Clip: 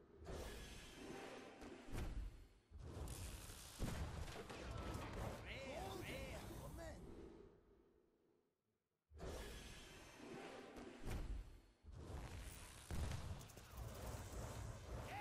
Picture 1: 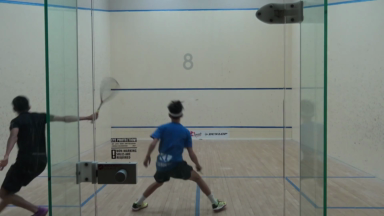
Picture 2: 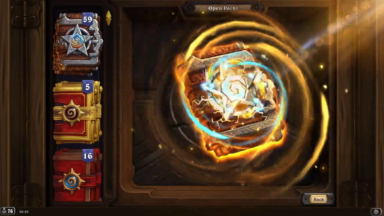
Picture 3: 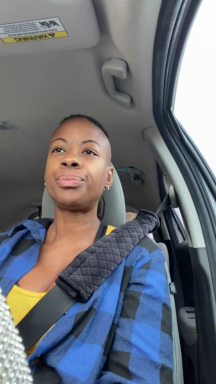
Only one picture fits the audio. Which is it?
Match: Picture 2